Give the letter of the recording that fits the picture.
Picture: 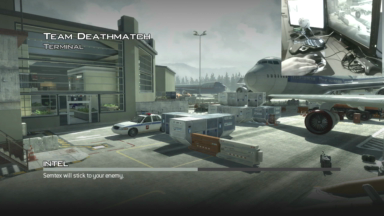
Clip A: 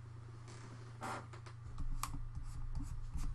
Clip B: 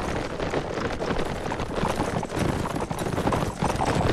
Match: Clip A